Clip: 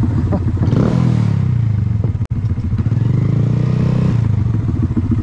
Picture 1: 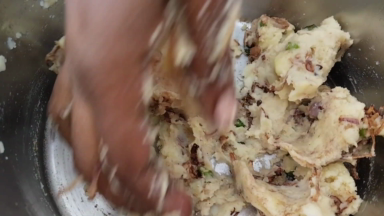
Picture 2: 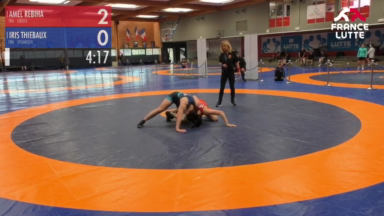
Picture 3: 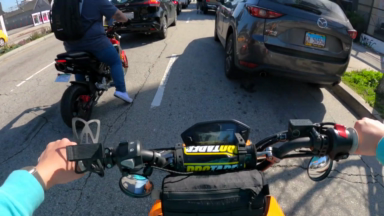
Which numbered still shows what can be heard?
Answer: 3